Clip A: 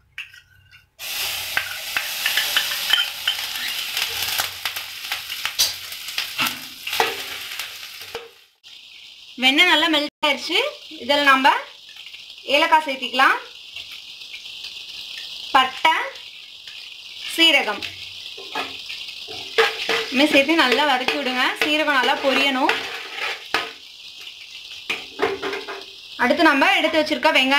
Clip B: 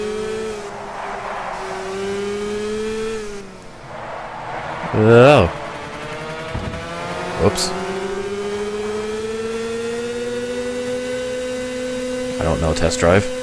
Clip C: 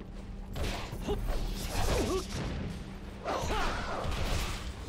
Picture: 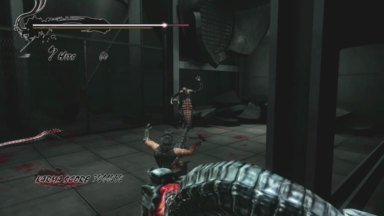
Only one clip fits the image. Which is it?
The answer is C